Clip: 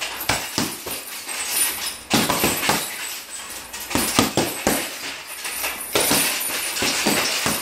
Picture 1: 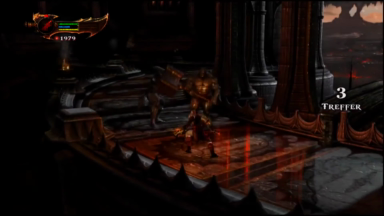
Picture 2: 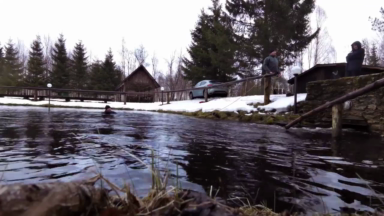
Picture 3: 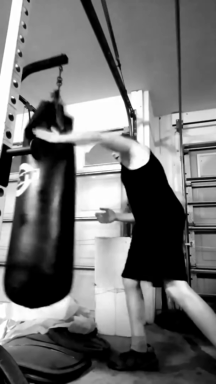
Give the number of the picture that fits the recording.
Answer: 3